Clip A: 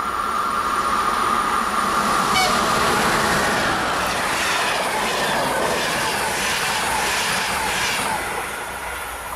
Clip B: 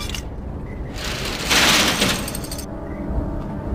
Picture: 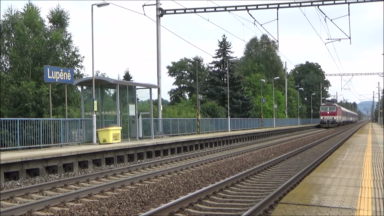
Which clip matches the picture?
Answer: A